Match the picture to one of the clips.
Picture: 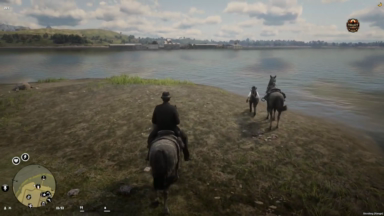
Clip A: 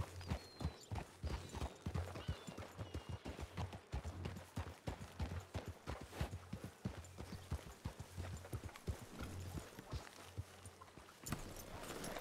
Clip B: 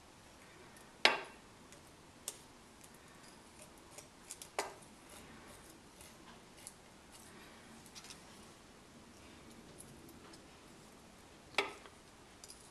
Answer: A